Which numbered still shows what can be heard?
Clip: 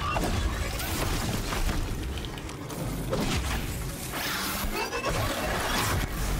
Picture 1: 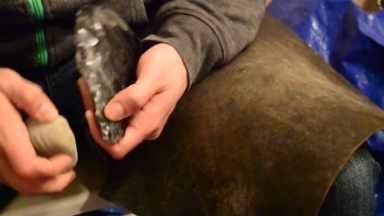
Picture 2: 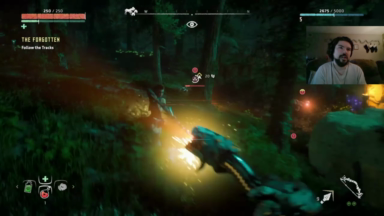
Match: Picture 2